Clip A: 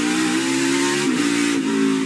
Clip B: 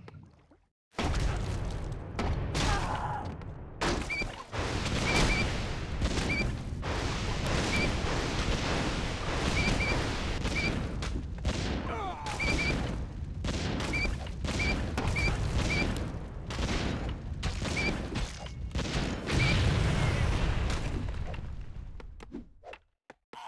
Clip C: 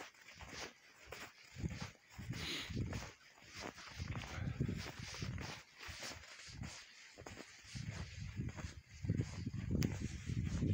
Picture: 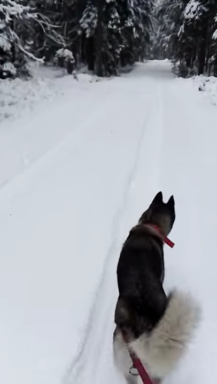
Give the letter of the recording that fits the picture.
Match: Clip C